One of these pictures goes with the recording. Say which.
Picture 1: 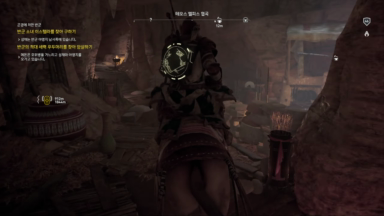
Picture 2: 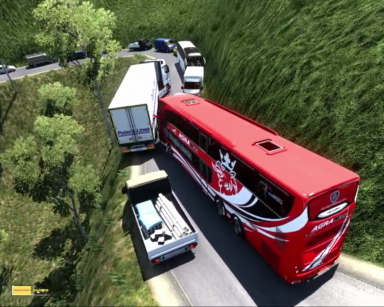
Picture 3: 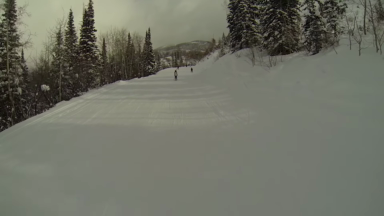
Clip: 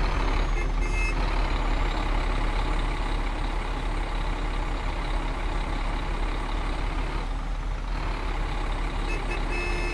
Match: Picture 2